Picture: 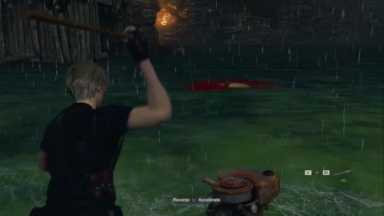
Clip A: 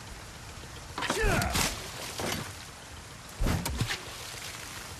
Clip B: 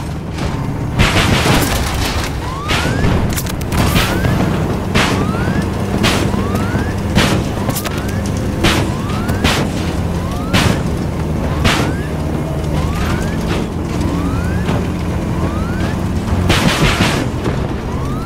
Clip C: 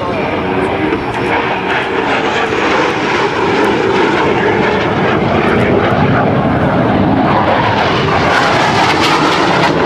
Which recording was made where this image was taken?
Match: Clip A